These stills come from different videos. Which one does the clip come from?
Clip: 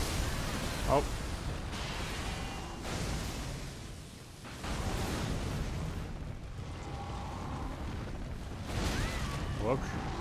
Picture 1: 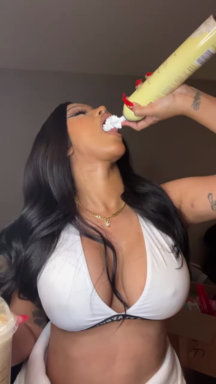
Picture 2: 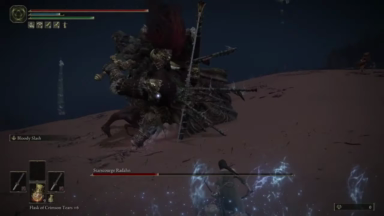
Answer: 2